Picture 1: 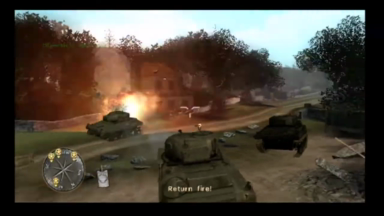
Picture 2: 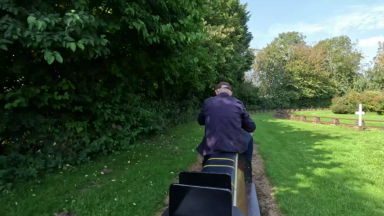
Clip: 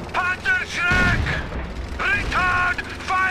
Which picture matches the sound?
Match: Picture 1